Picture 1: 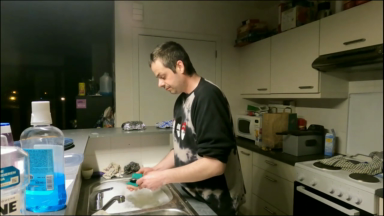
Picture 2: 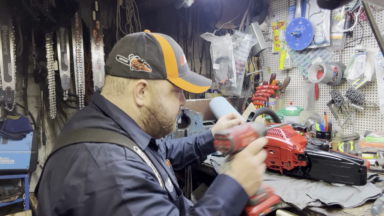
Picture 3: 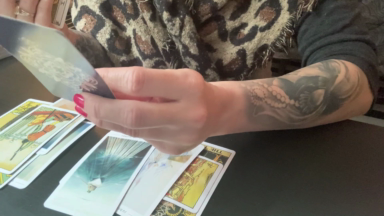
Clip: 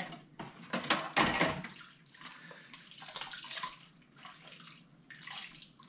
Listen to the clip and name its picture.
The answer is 1